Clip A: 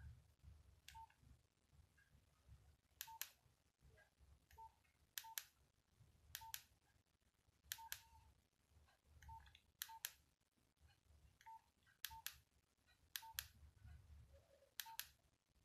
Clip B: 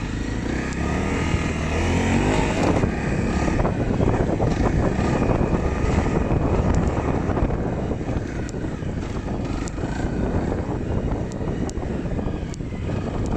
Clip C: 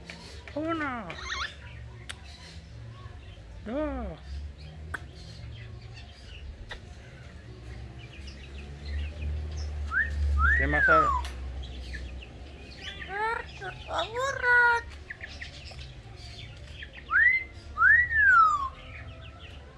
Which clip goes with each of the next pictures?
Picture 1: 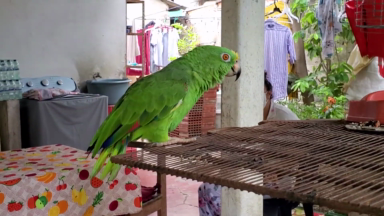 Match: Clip C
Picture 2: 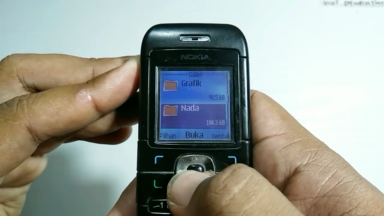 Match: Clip A